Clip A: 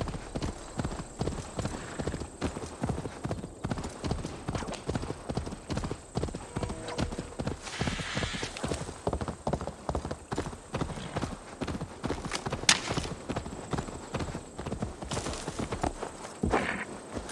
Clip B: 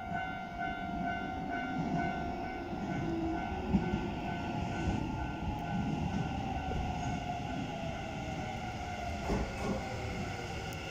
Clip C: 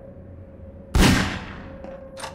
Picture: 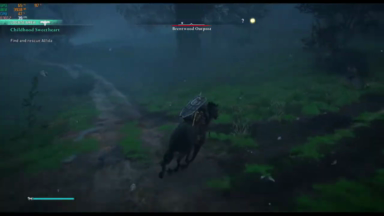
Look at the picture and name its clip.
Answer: A